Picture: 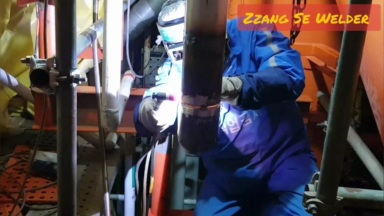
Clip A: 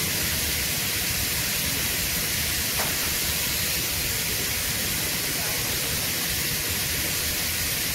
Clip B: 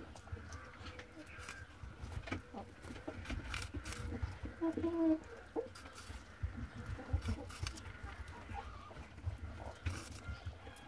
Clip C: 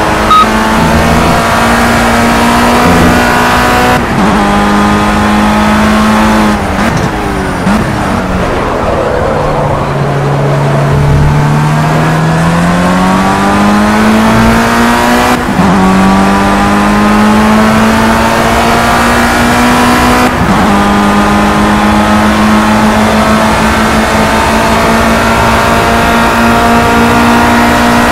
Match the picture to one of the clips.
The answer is A